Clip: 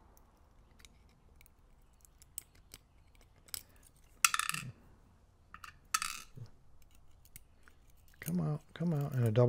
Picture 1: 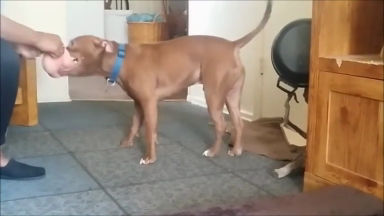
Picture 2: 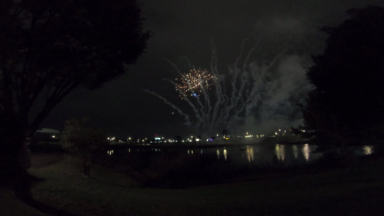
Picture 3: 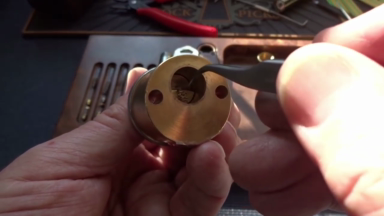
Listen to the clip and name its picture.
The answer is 3